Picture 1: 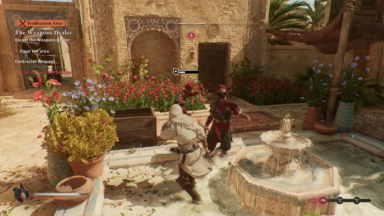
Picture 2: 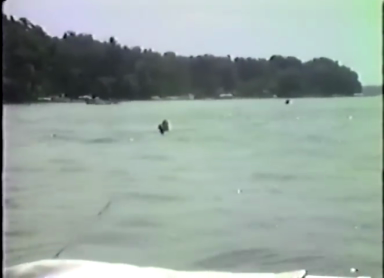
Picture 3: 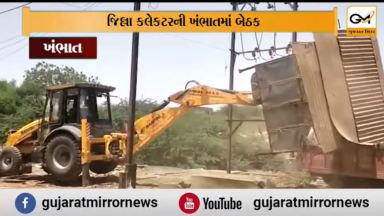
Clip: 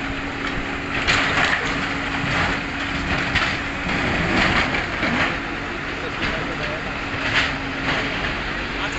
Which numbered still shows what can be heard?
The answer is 3